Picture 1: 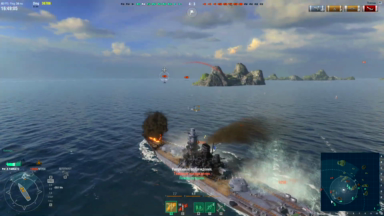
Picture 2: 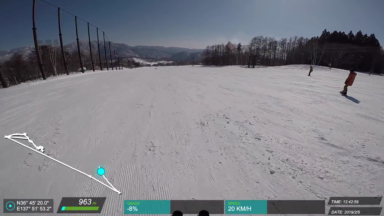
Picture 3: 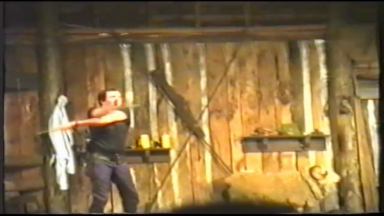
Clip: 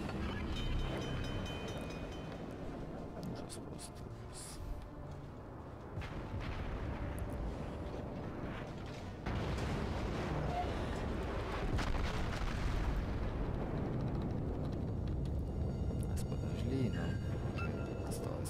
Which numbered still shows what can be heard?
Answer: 1